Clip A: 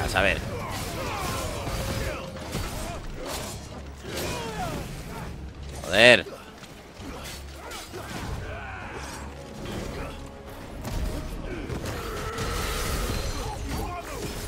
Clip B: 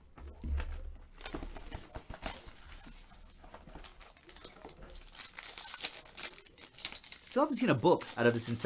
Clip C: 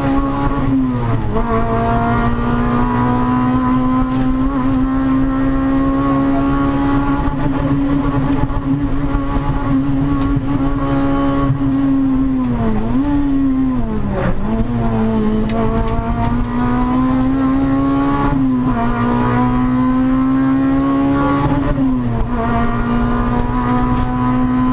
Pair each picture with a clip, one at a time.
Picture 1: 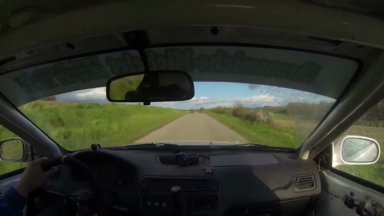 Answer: C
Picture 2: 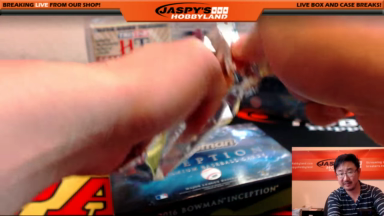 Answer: B